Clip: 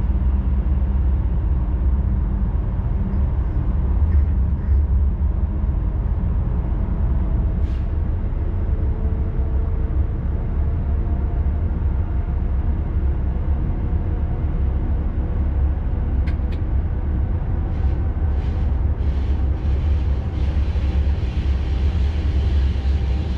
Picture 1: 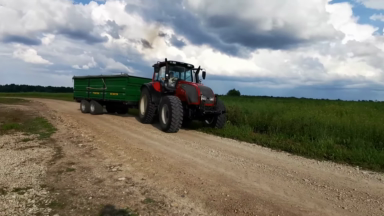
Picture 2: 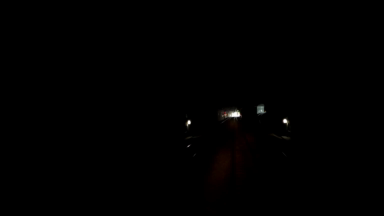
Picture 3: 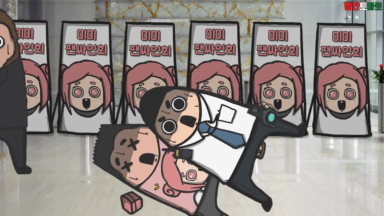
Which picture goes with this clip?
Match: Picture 2